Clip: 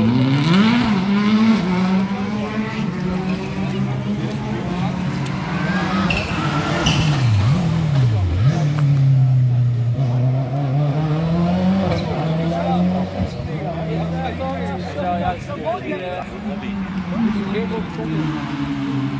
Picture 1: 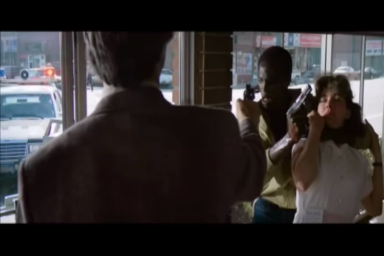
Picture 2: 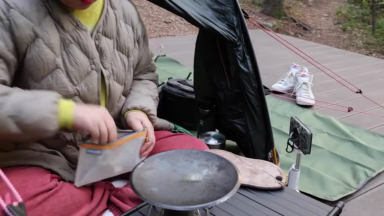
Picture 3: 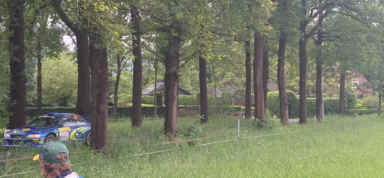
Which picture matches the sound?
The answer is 3